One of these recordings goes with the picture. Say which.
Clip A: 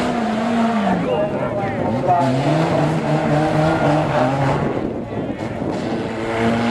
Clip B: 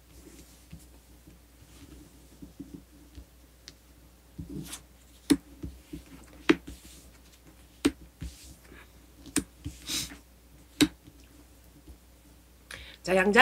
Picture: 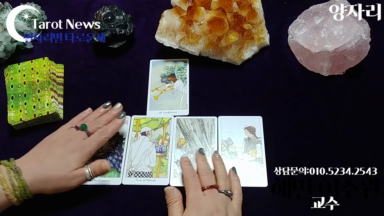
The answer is B